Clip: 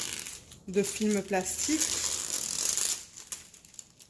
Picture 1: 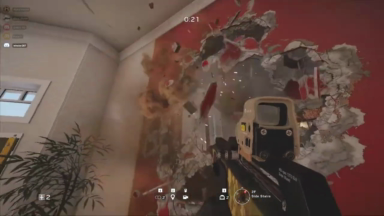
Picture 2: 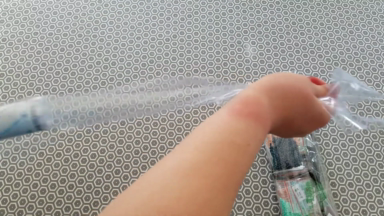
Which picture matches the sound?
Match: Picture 2